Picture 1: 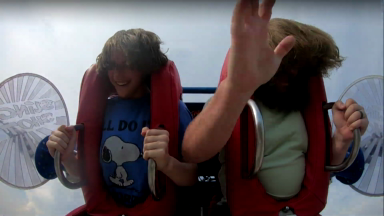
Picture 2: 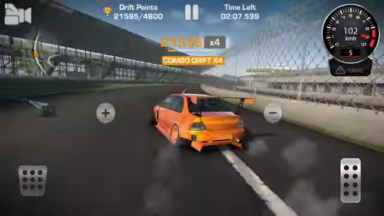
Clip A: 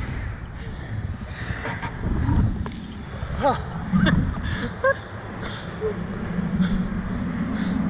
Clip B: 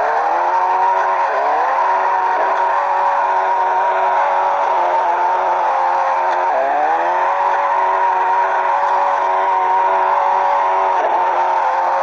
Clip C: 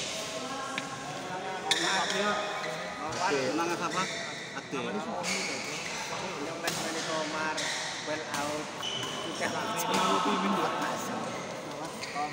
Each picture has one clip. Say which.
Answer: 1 A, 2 B